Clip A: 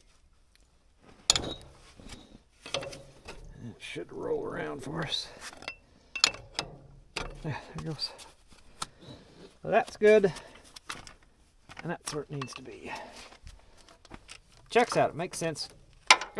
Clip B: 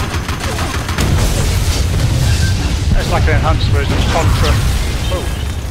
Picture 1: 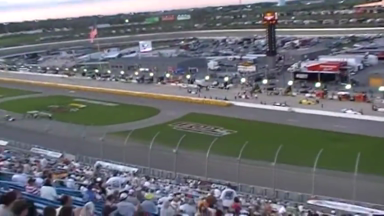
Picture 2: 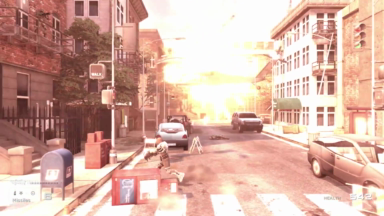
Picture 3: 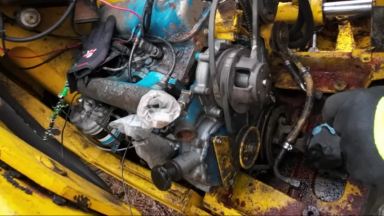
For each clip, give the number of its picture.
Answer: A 3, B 2